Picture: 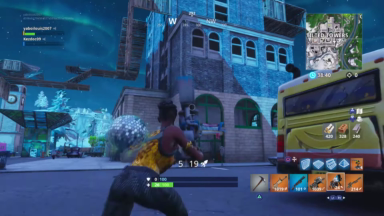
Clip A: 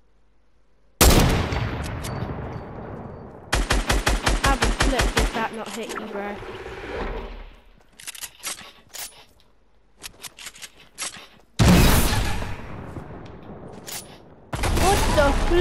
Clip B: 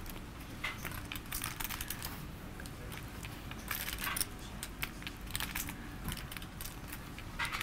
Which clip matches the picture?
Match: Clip A